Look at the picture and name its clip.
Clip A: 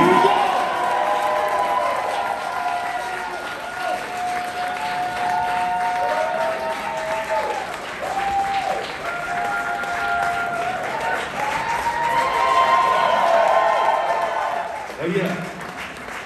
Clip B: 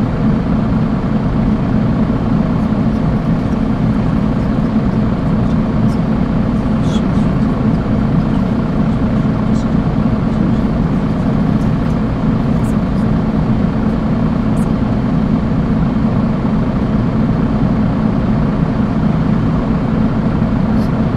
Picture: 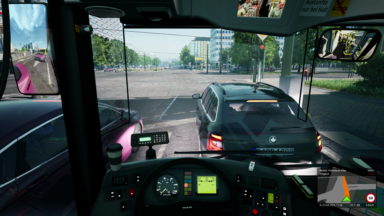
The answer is B